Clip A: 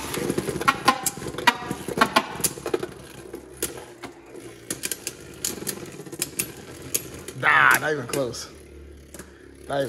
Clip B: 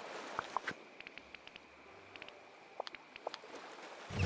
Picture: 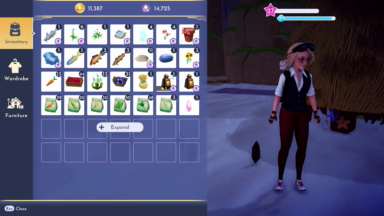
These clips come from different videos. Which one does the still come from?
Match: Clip B